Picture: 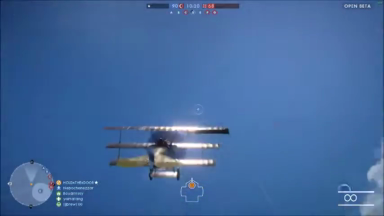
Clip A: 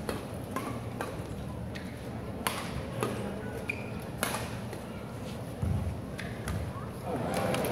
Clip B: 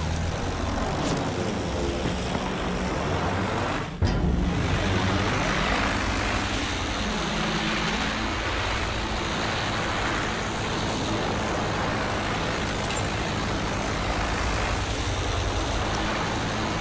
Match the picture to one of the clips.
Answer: B